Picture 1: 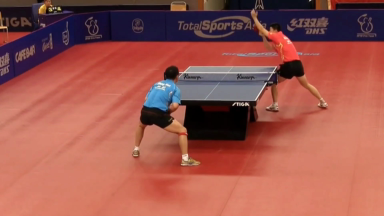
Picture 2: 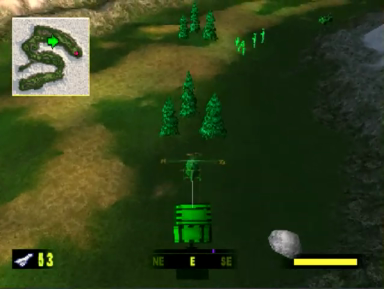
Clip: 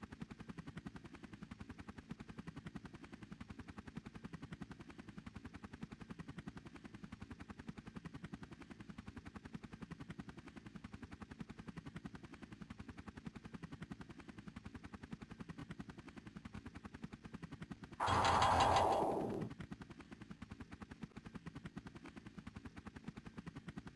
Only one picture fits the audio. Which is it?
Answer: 2